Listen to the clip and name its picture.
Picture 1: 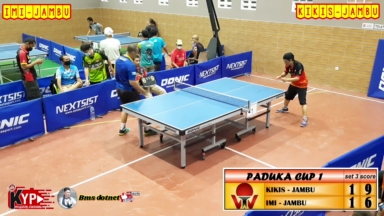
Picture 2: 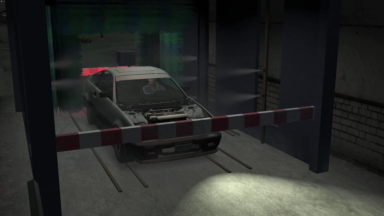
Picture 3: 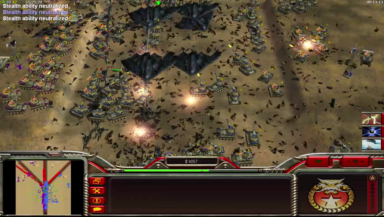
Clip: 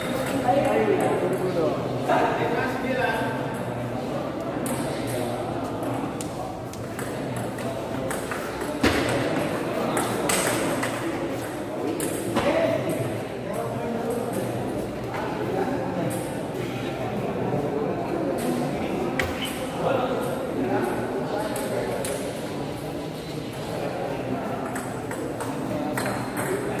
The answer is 1